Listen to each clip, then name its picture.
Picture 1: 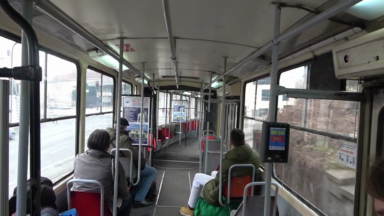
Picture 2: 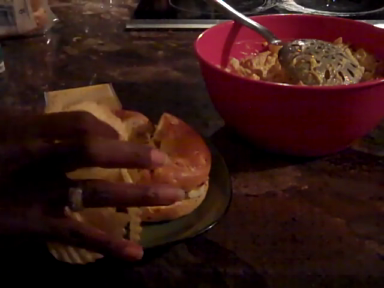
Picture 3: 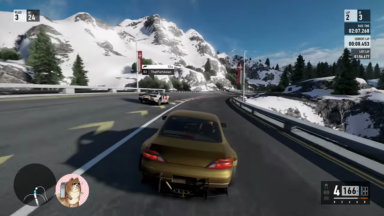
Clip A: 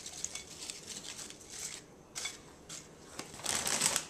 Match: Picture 2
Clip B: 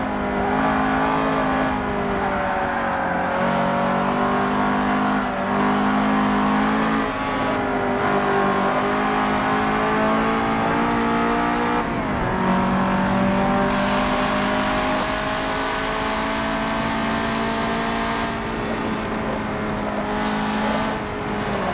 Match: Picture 3